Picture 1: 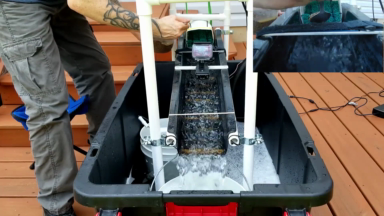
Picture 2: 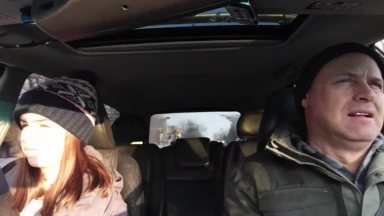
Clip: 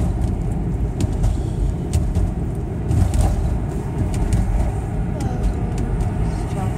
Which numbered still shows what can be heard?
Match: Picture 2